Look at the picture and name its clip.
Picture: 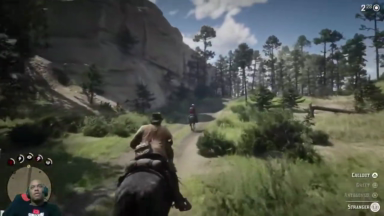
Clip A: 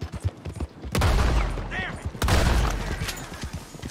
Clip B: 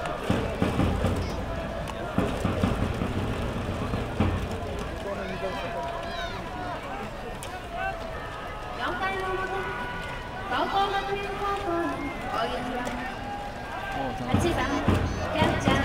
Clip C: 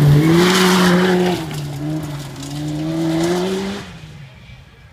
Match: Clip A